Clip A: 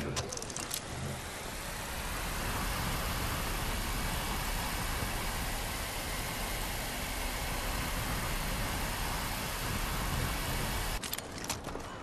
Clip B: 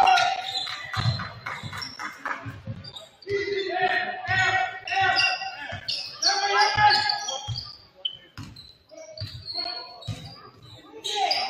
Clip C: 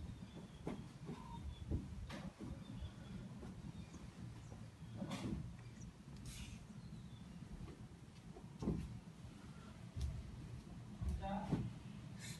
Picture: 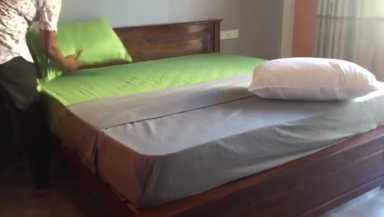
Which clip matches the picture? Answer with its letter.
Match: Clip C